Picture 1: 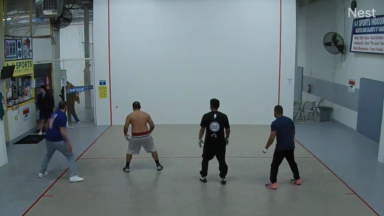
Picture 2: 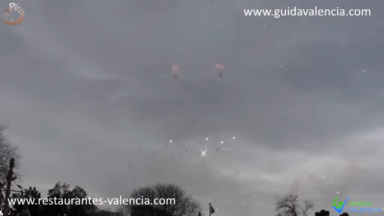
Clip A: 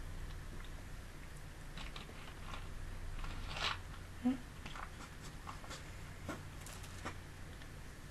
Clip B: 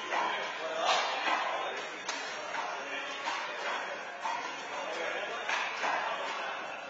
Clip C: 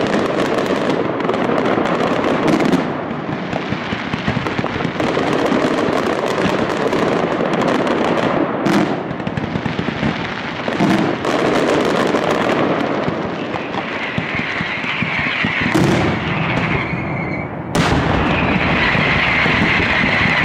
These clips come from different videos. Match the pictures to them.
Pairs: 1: B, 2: C